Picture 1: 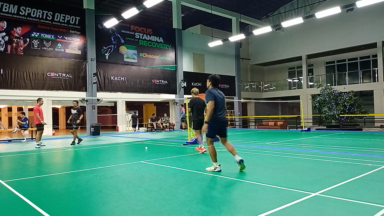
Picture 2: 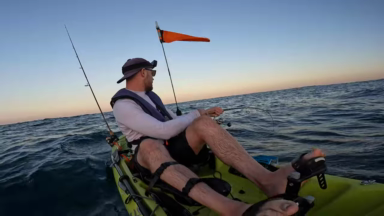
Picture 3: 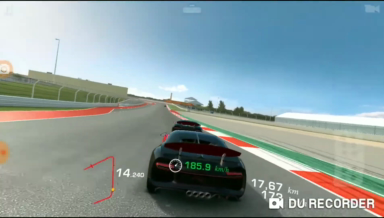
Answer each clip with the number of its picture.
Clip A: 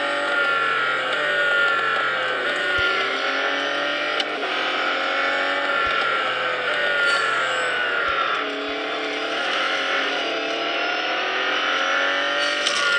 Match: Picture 3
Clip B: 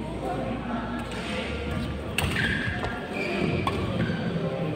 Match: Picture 1